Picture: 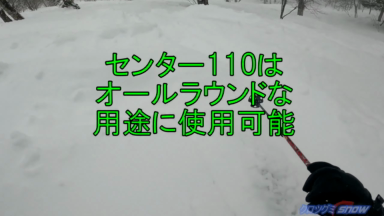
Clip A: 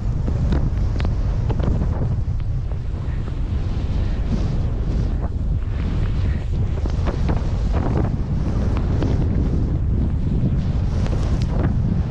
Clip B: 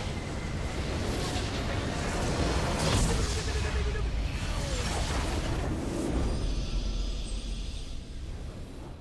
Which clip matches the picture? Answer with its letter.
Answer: A